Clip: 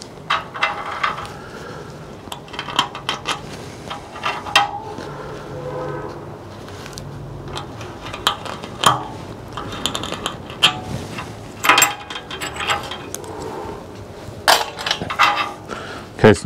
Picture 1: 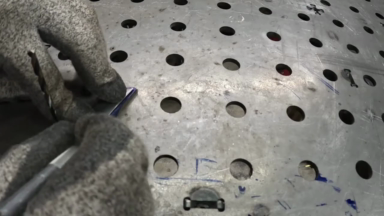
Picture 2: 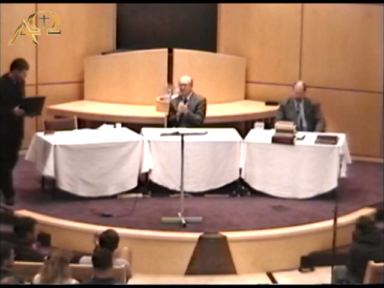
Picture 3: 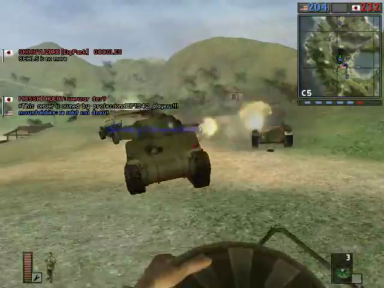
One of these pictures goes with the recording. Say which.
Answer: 1